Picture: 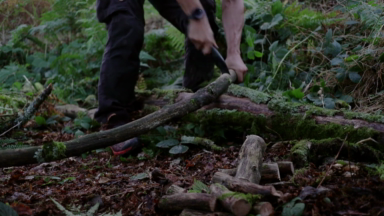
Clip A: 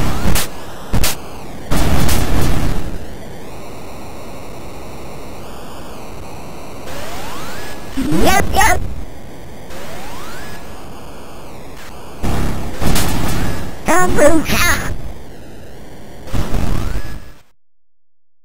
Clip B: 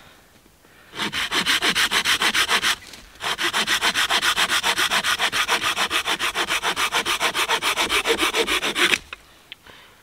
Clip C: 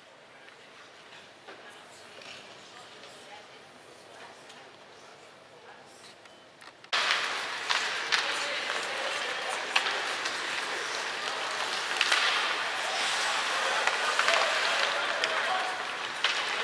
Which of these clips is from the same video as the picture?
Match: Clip B